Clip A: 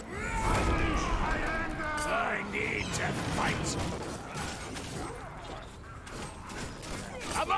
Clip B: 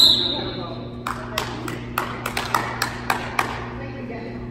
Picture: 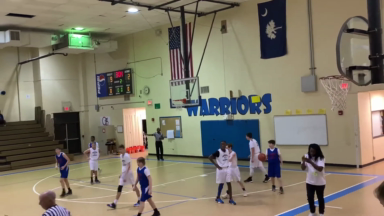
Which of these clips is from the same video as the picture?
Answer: B